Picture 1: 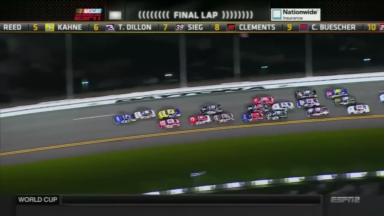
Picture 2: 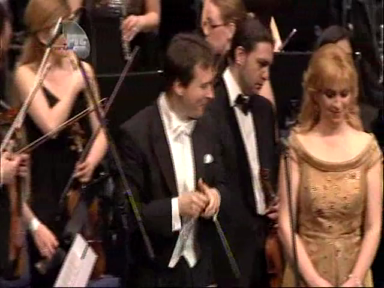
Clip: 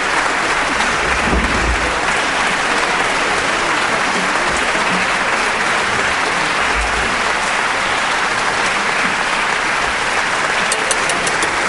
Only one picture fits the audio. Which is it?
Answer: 2